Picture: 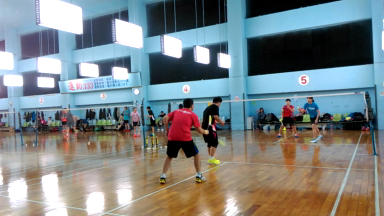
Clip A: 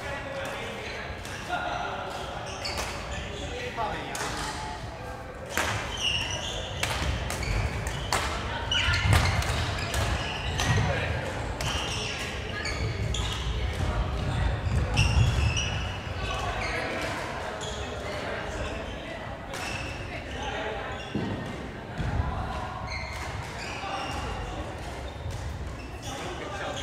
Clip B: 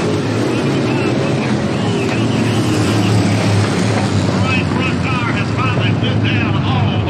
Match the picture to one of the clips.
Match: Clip A